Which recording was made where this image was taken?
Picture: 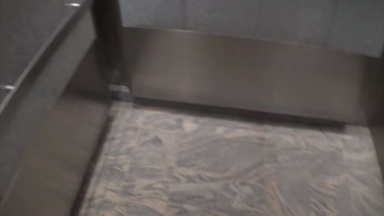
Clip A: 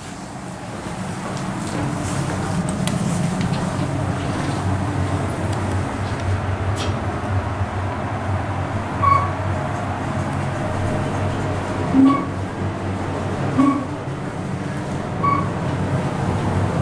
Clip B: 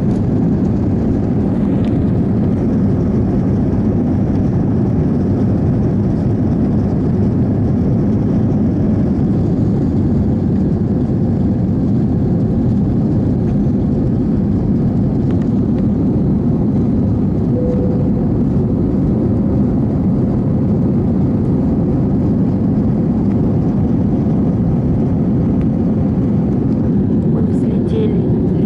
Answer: A